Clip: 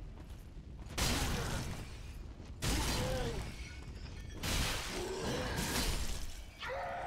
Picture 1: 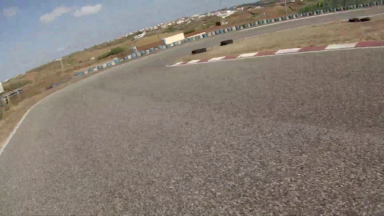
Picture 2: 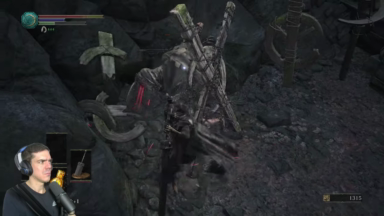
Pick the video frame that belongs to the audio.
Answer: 2